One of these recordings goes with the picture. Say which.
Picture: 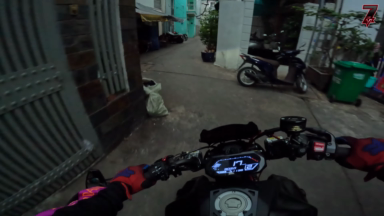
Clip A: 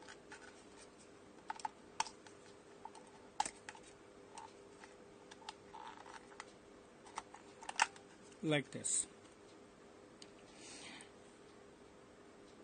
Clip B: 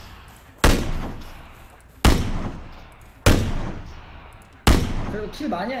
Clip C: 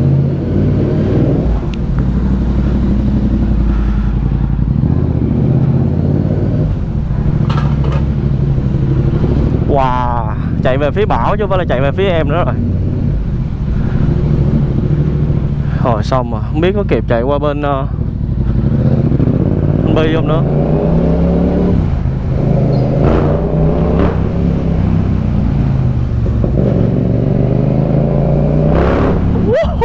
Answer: C